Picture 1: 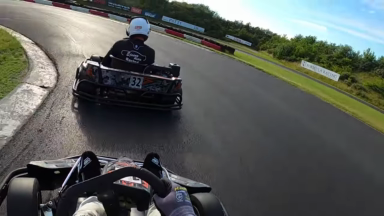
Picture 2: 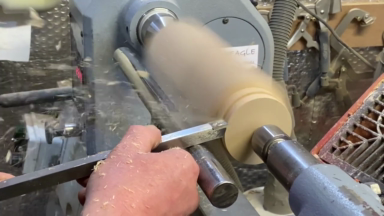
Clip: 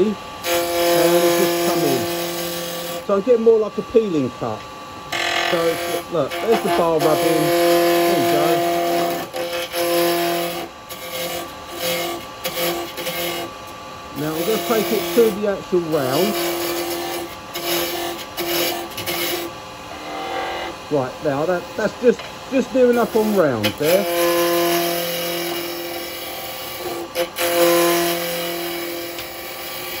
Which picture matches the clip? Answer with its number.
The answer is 2